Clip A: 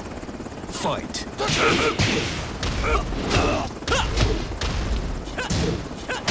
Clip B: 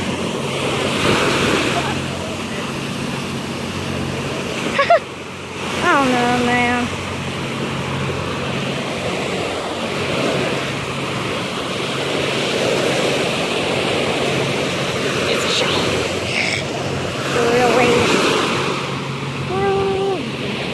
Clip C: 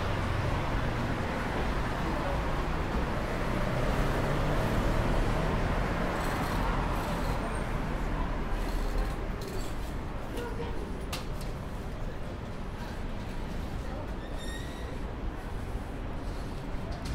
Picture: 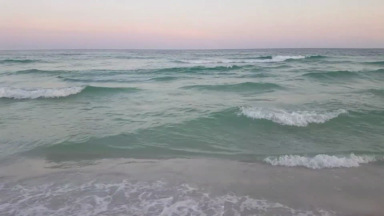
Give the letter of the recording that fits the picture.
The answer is B